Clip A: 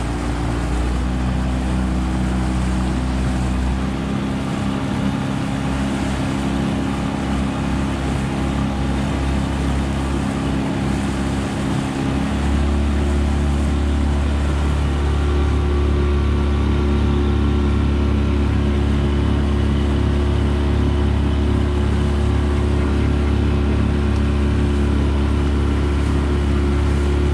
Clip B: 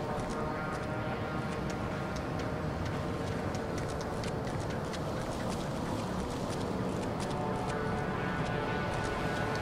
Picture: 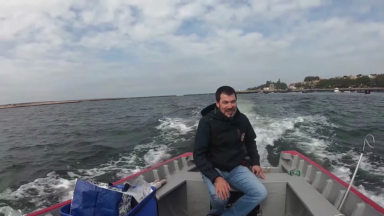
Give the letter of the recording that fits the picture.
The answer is A